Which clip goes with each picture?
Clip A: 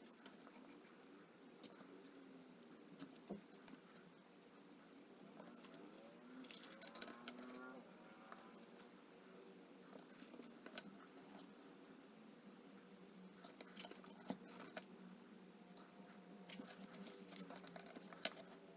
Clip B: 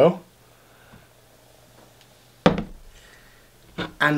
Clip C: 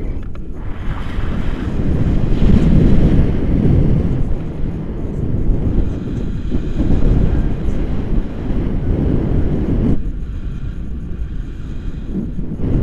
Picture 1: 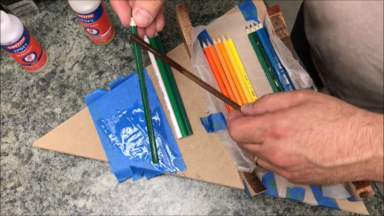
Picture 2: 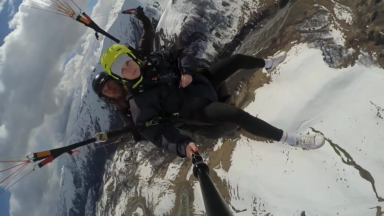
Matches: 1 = A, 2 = C